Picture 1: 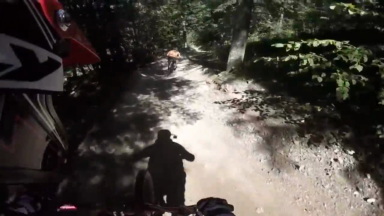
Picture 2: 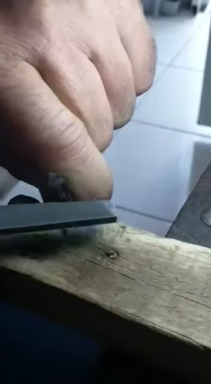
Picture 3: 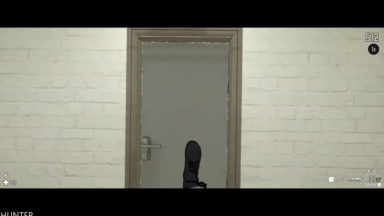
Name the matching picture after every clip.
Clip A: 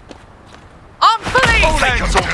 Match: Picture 3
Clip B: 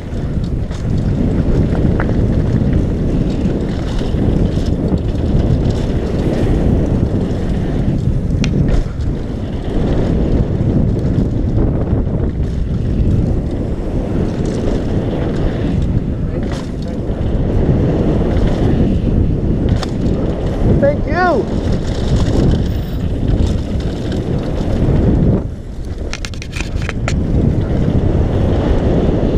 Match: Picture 1